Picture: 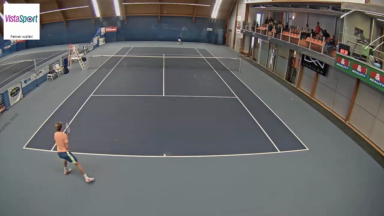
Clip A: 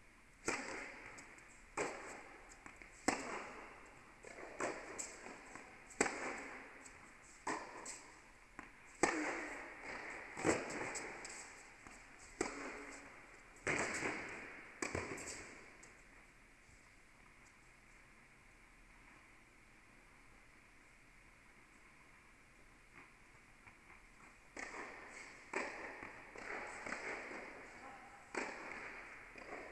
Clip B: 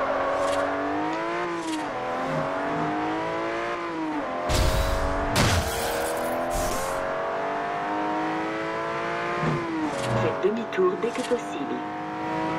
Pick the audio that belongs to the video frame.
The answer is A